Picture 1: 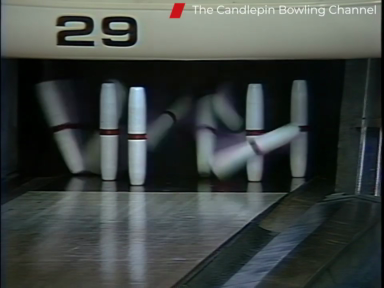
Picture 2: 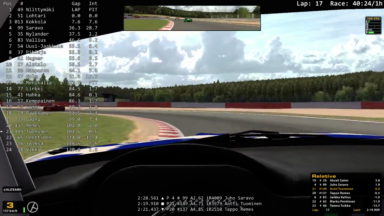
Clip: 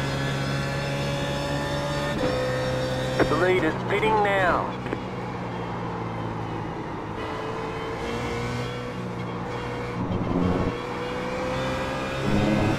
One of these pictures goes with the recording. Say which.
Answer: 2